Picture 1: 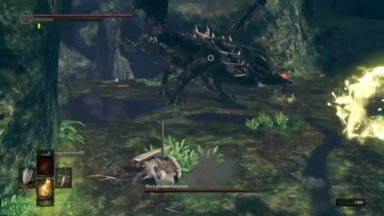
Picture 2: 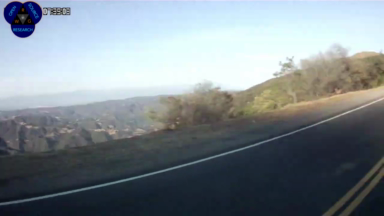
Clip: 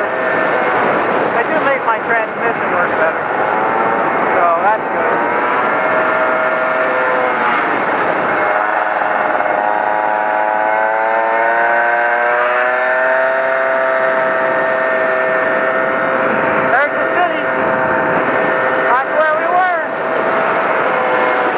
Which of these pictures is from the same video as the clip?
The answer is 2